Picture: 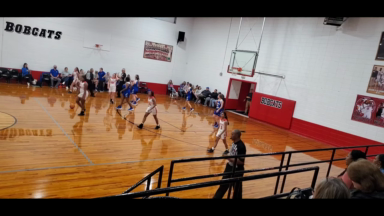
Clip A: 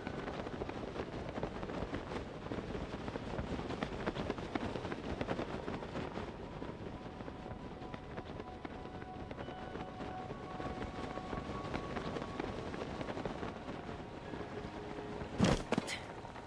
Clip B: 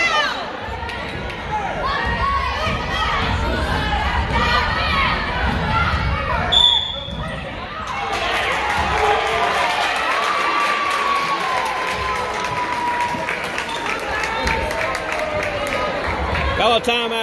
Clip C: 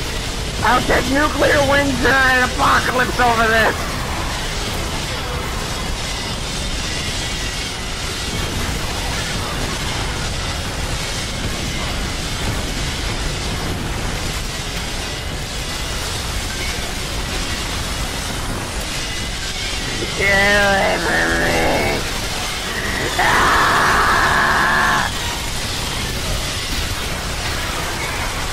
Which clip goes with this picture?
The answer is B